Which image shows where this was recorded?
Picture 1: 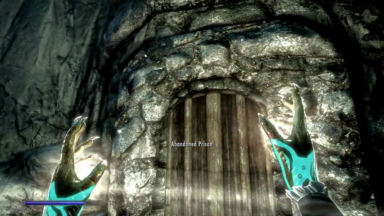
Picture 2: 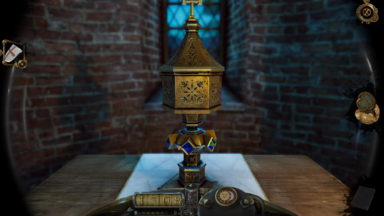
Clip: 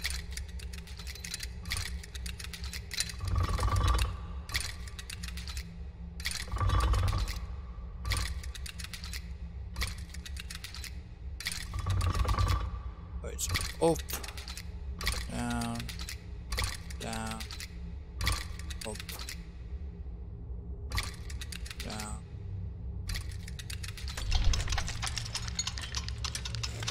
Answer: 2